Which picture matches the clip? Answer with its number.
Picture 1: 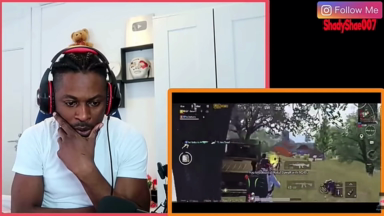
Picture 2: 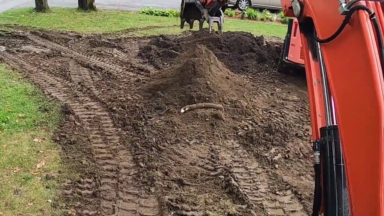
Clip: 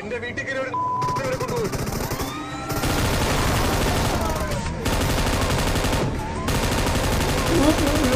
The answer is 1